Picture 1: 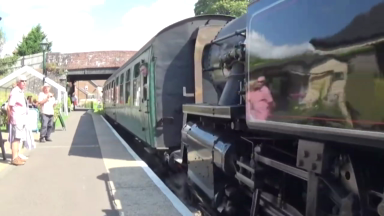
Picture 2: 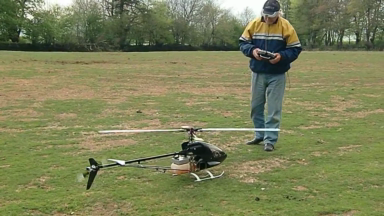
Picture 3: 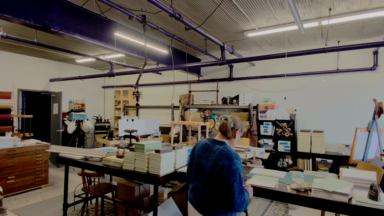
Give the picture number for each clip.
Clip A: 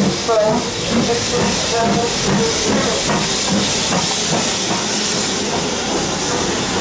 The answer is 1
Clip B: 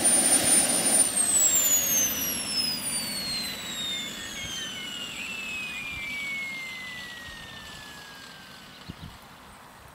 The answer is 2